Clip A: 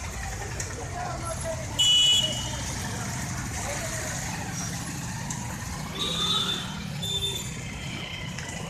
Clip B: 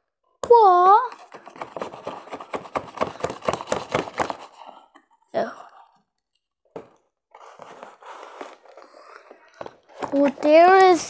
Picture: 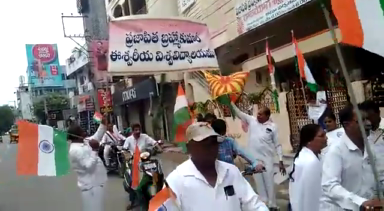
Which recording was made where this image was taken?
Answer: A